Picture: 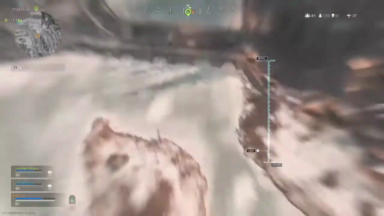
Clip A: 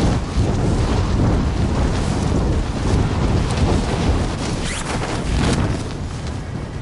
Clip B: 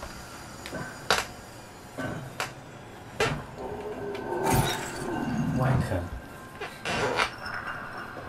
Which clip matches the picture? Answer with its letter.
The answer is A